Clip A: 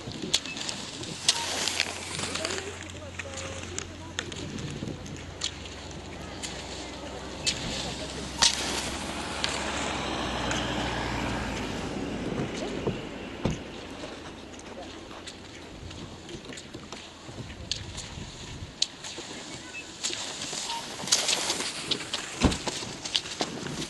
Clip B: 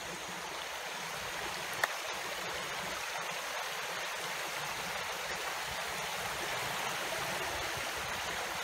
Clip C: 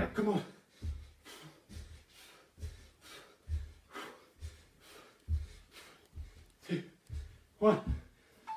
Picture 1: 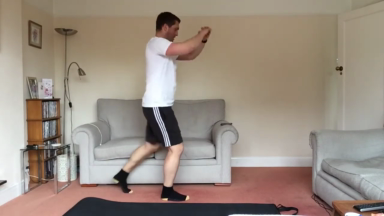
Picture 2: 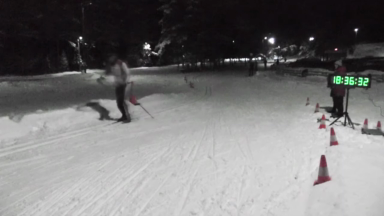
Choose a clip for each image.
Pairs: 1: C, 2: A